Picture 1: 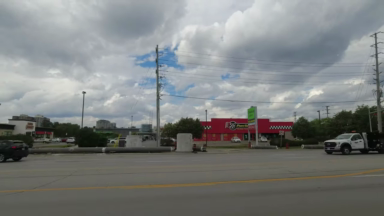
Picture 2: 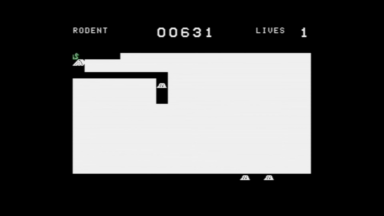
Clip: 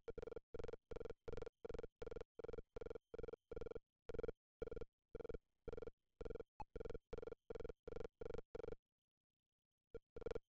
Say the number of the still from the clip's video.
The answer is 2